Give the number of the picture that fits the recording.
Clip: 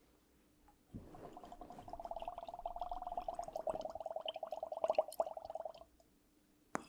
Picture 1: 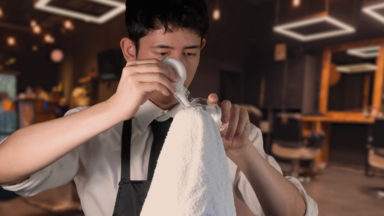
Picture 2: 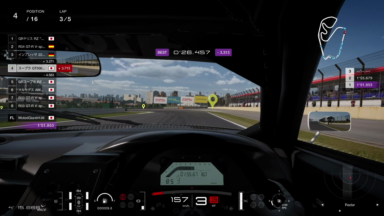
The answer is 1